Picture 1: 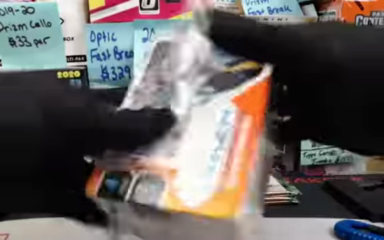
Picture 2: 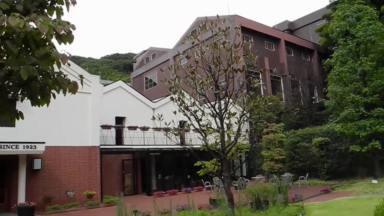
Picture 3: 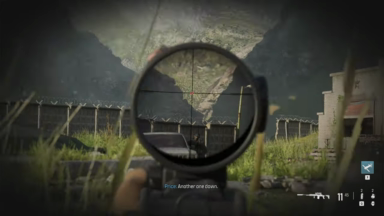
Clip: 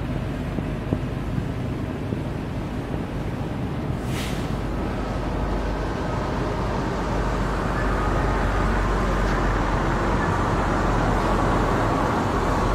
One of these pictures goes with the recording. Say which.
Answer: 2